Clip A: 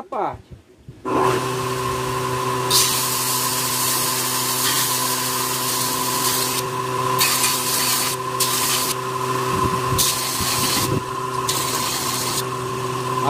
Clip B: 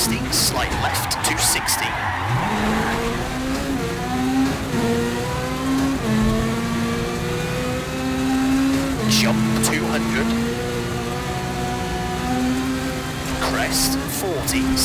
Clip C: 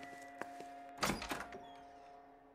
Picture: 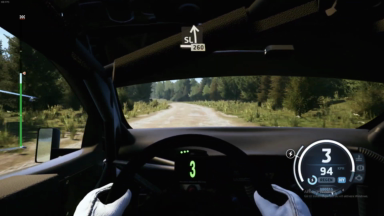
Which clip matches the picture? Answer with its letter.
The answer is B